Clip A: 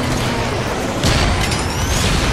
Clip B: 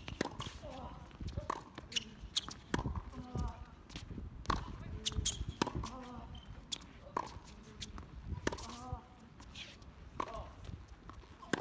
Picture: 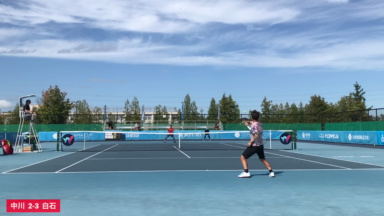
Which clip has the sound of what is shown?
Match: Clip B